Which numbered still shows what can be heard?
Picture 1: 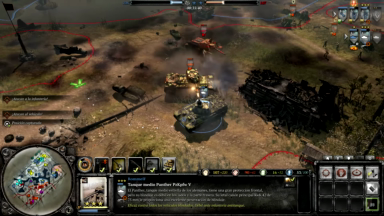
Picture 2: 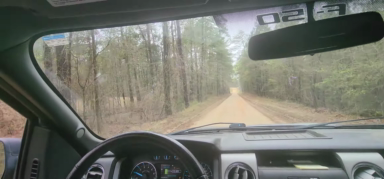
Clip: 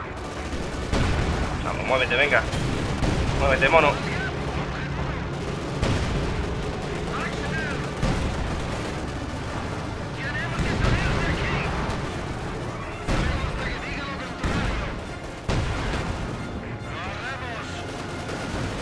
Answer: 1